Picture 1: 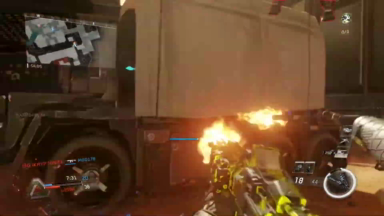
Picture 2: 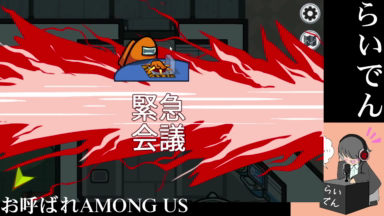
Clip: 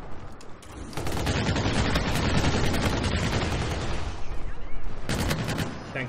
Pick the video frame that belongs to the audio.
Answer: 1